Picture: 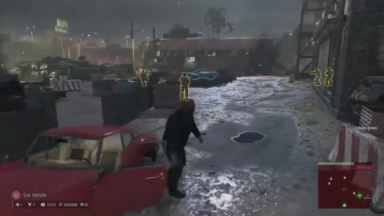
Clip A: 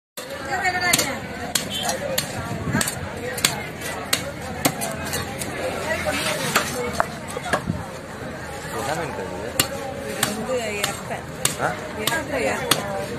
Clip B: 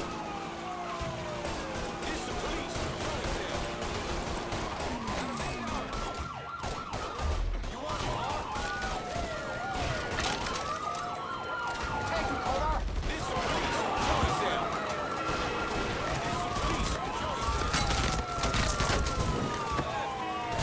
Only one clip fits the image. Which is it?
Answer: B